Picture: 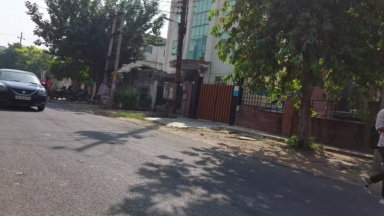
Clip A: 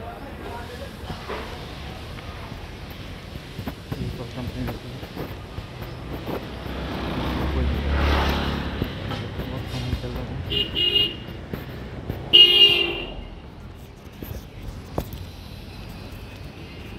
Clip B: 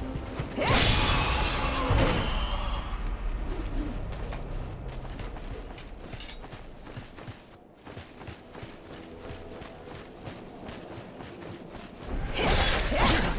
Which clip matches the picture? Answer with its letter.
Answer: A